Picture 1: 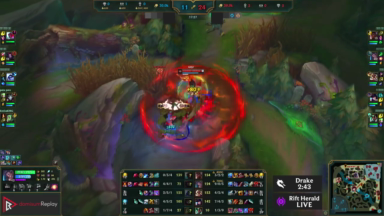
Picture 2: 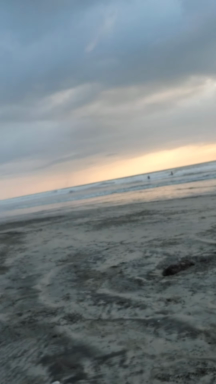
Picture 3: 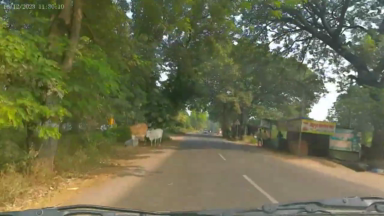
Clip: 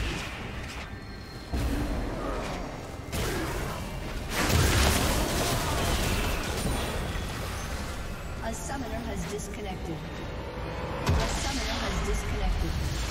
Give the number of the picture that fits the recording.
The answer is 1